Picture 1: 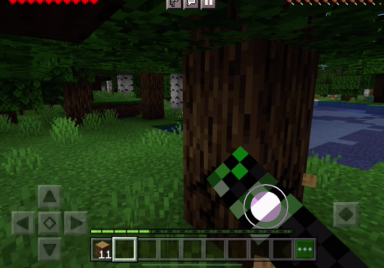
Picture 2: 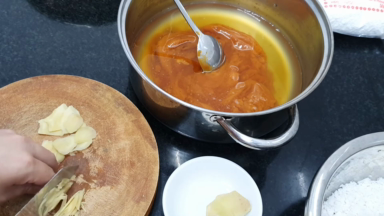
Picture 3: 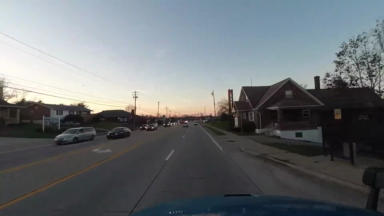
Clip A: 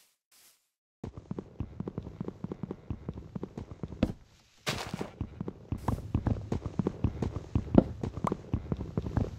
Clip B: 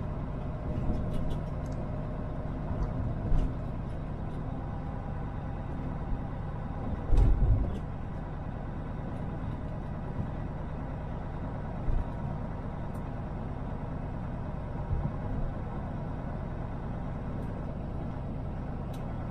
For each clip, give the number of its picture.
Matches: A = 1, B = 3